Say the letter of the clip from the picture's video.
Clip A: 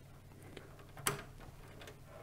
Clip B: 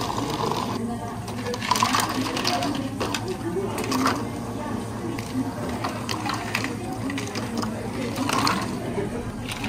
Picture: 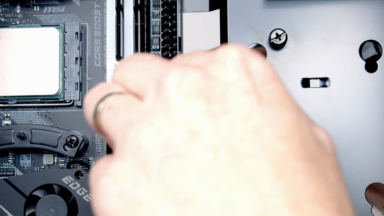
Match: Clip A